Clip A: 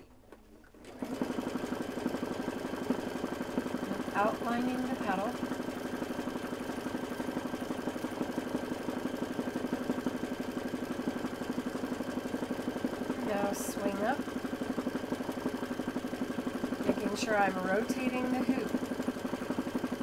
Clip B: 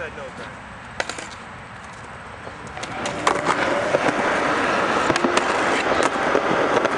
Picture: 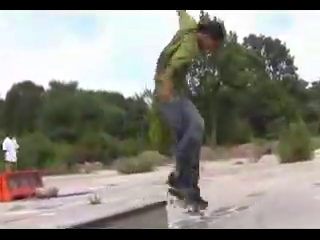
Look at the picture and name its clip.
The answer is B